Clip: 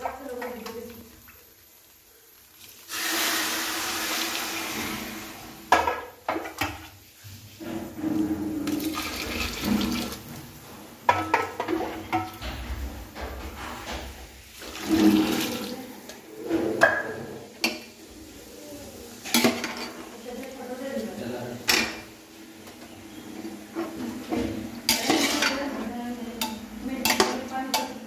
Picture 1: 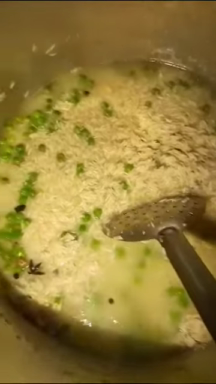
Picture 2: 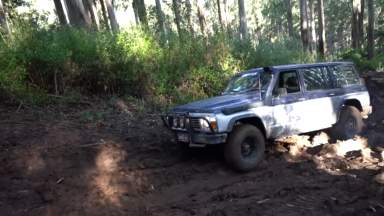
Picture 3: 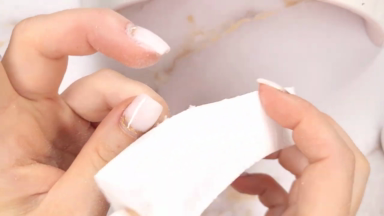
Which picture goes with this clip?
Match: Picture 1